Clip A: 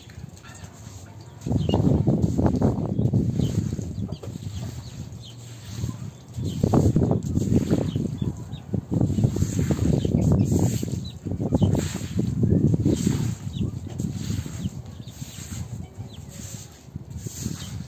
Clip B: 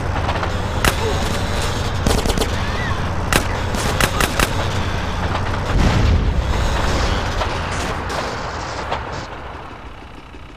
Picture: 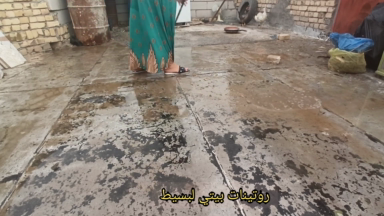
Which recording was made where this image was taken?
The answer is A